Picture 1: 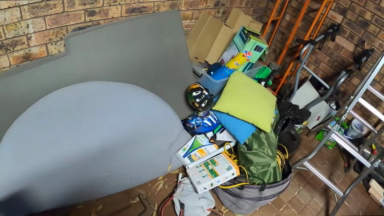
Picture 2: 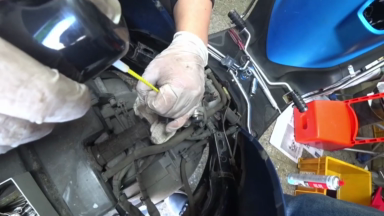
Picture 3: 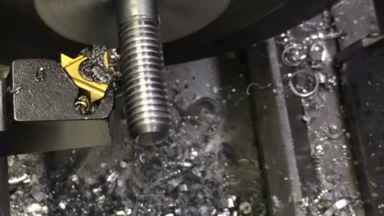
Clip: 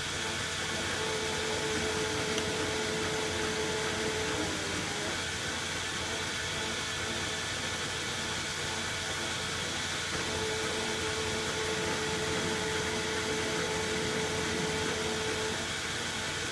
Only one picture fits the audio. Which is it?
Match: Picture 3